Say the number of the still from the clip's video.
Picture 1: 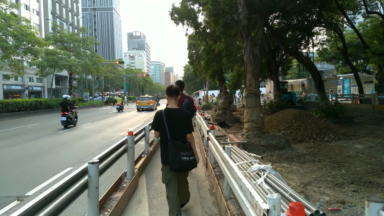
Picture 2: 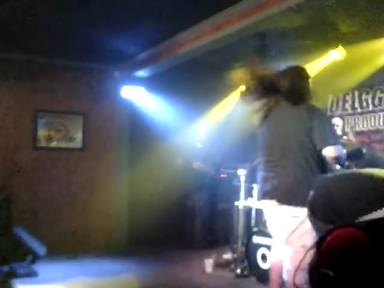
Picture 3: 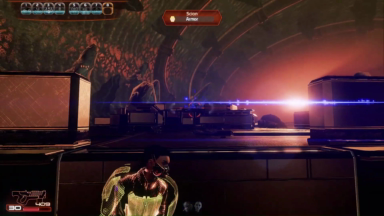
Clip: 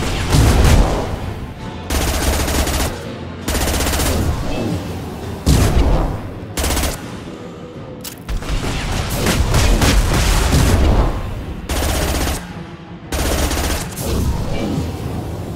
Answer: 3